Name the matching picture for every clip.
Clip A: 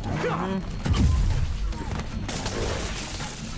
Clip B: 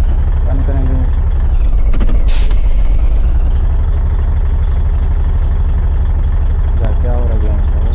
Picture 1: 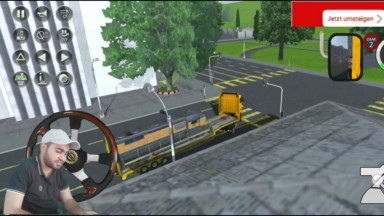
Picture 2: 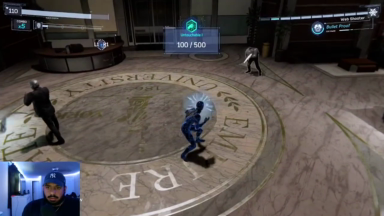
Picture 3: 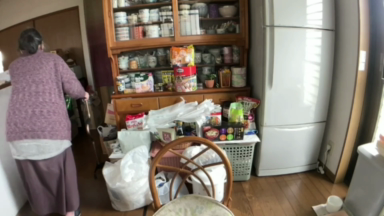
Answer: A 2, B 1